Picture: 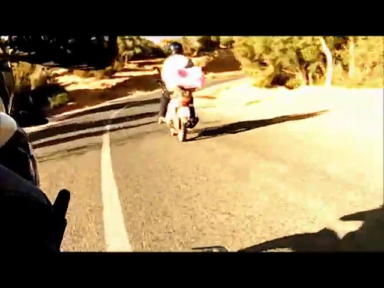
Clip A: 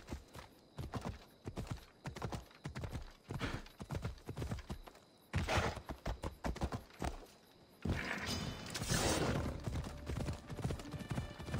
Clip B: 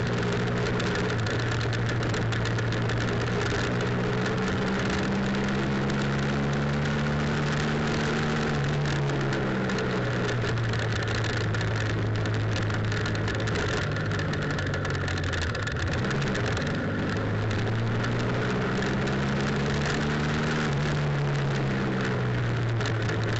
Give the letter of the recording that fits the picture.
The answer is B